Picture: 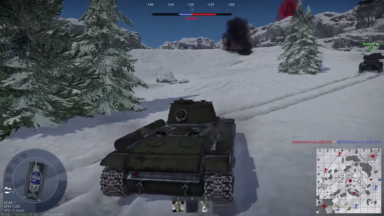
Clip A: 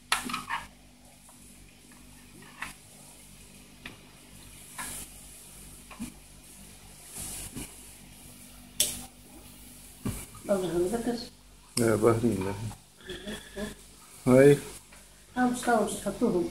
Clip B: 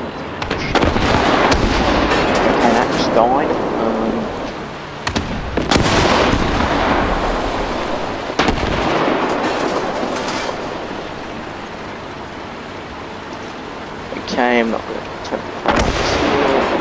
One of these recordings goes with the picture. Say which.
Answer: B